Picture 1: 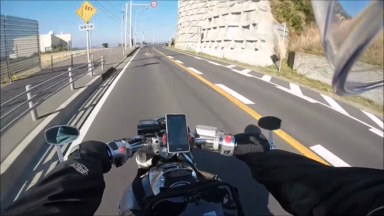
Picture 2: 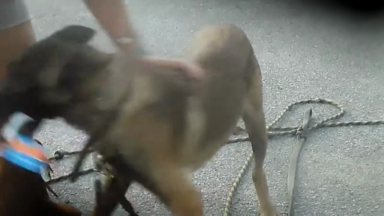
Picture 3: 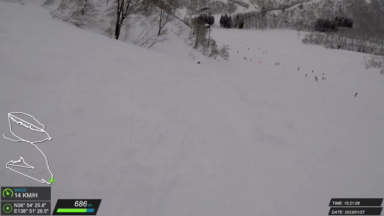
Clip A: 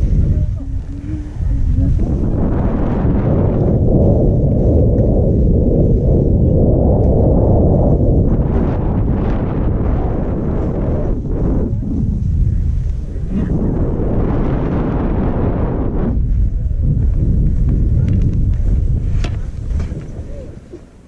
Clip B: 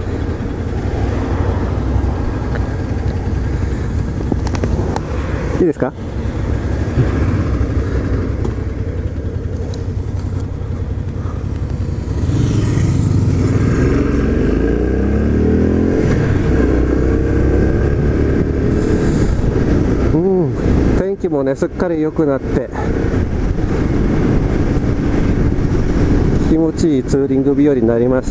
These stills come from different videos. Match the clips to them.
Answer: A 3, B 1